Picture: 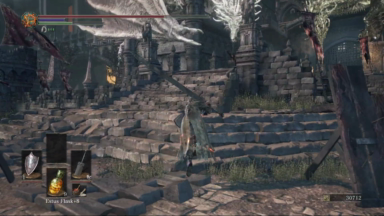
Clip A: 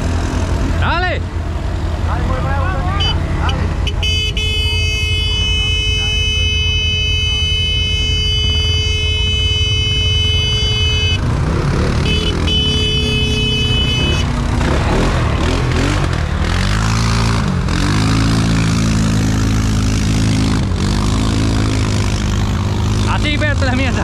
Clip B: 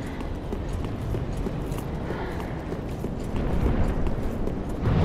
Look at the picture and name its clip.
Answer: B